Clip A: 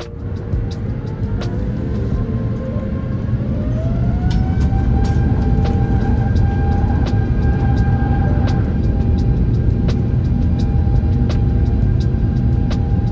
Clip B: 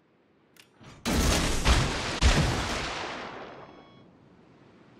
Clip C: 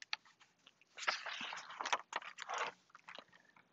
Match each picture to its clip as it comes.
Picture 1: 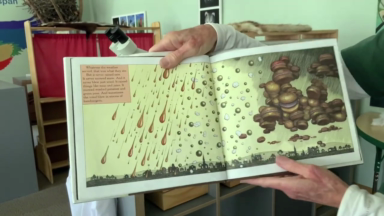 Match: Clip C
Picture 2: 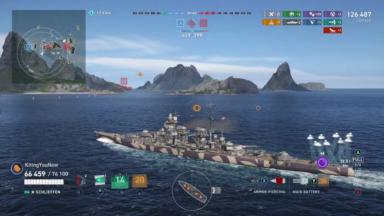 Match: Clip B